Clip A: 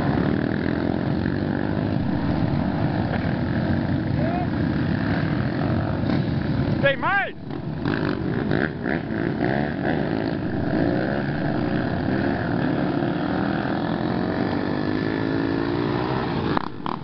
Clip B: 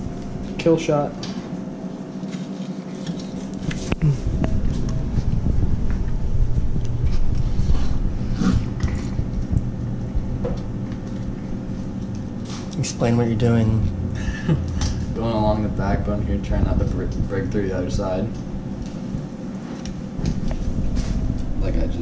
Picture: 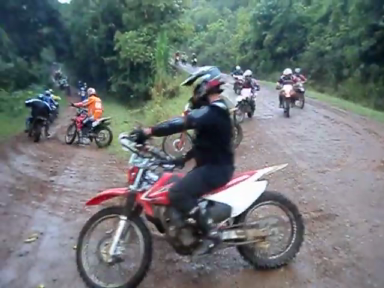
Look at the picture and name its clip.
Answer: A